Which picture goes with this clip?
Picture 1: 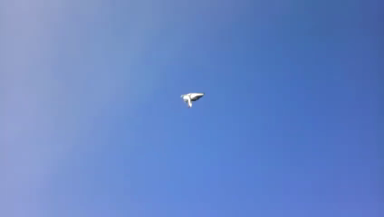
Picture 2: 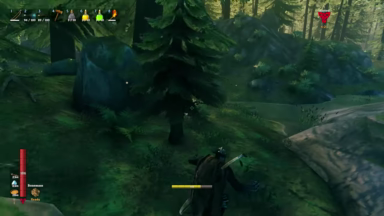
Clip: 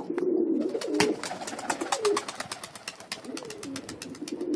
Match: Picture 1